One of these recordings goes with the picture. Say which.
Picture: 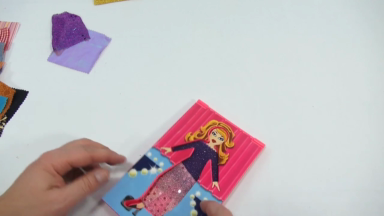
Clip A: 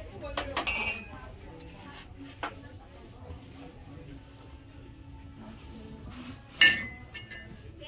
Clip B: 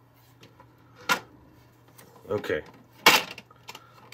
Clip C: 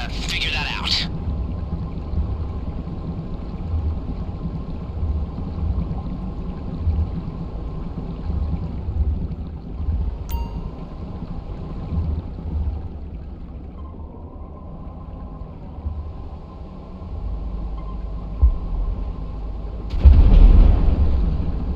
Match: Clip B